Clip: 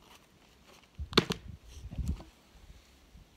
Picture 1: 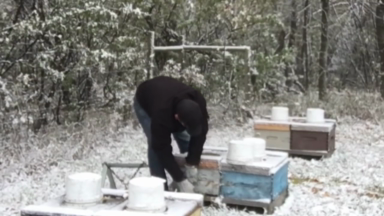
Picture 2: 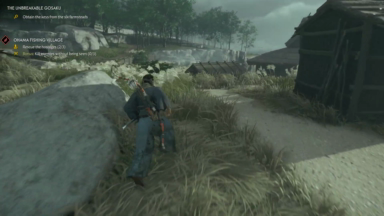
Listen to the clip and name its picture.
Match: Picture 1